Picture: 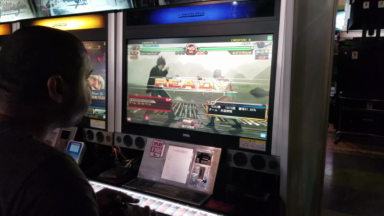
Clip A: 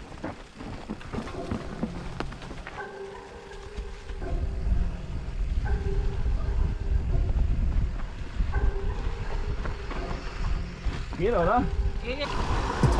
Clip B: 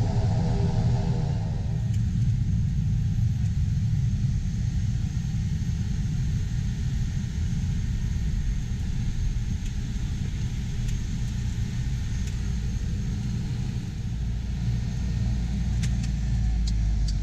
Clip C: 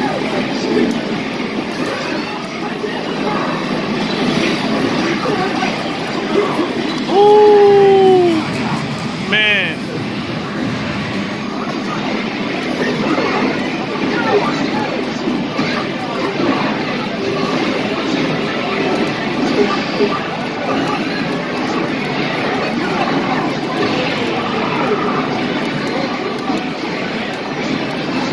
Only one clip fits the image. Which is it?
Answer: C